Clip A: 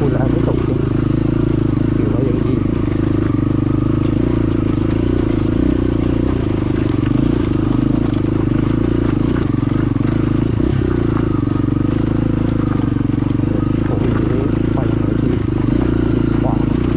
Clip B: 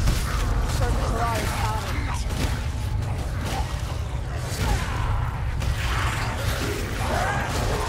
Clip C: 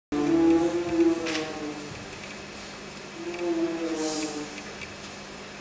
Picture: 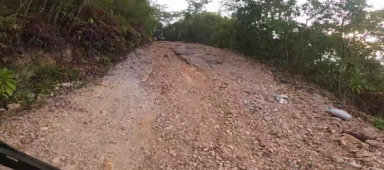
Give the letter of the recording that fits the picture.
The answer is A